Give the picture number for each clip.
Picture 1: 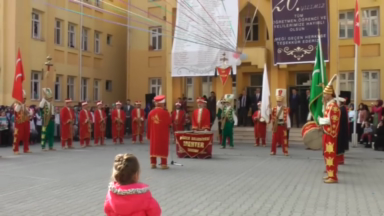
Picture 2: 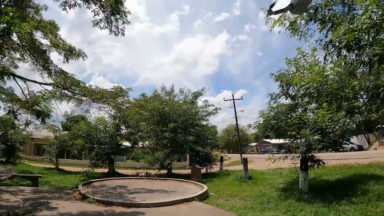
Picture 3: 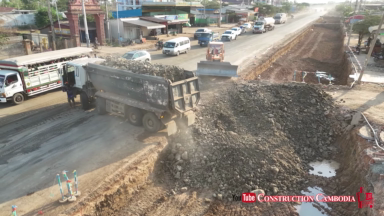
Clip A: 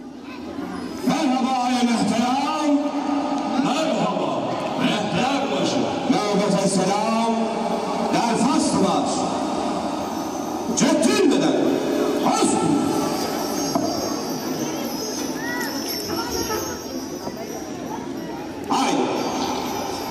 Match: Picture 1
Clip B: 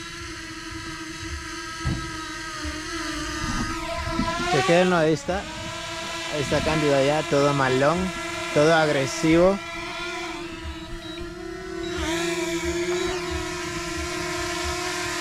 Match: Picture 2